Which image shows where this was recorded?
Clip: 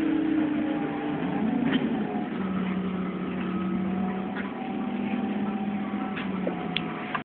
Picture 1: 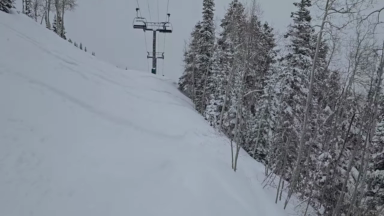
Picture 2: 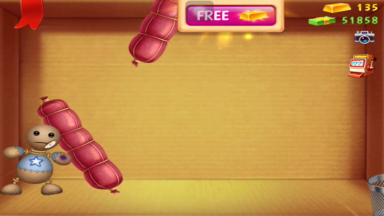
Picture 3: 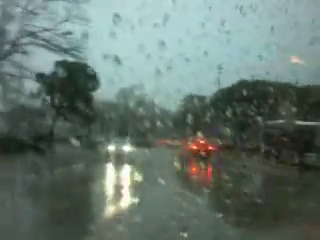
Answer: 3